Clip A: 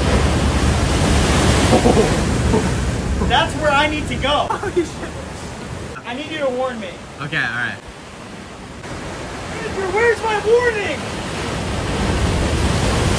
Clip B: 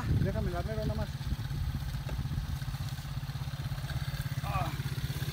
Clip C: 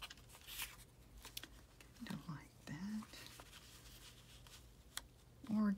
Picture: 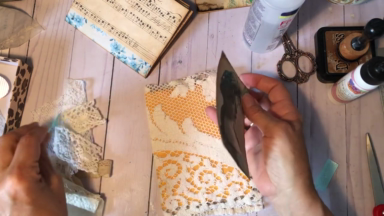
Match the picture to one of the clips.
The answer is C